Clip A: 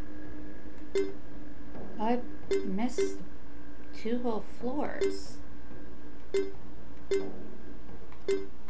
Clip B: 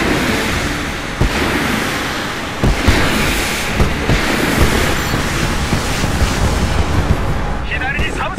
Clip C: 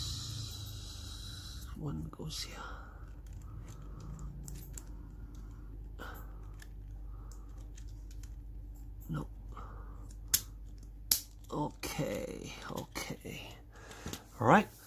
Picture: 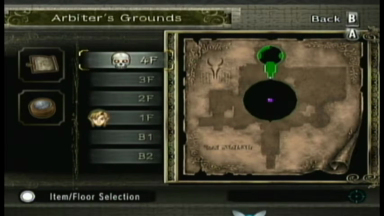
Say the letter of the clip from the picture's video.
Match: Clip A